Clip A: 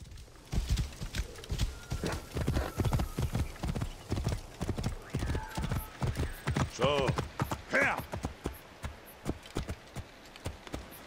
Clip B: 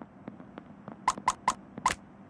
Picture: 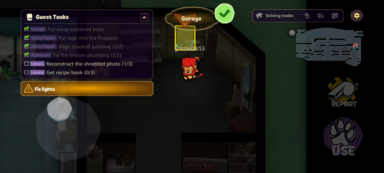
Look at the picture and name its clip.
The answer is B